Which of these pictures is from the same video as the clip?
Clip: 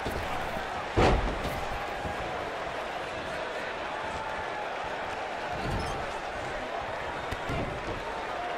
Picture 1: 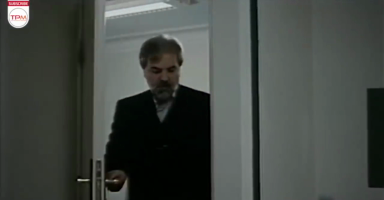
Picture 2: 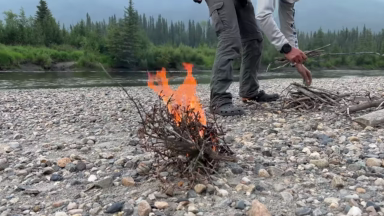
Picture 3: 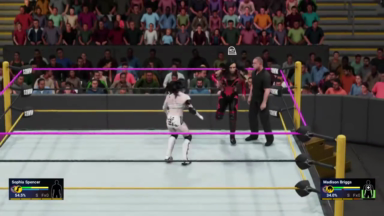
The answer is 3